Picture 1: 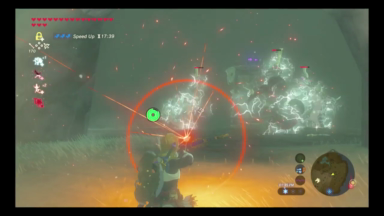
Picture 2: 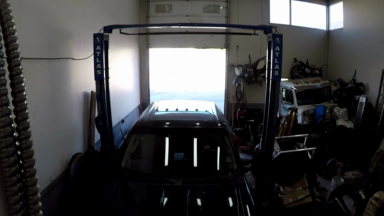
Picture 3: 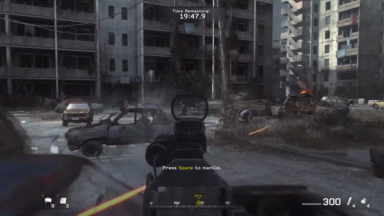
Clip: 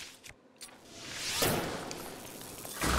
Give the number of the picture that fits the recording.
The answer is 1